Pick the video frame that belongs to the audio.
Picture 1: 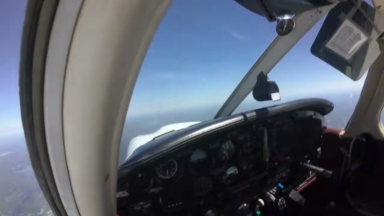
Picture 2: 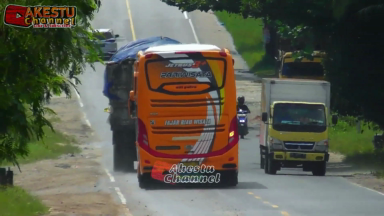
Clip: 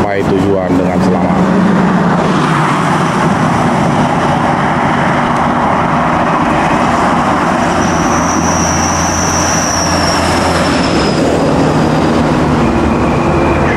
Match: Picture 2